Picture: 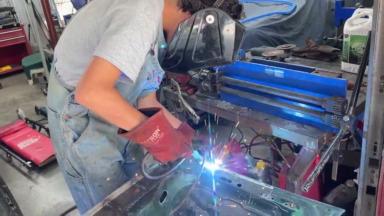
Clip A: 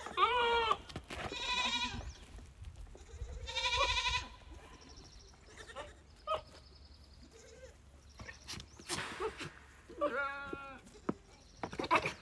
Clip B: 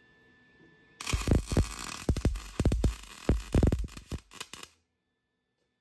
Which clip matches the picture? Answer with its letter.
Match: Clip B